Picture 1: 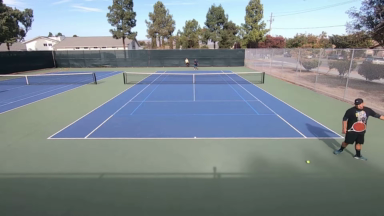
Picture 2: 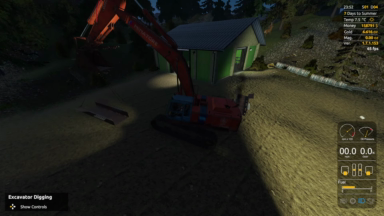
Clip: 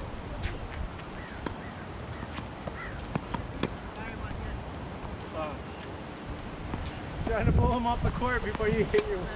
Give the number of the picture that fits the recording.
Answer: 1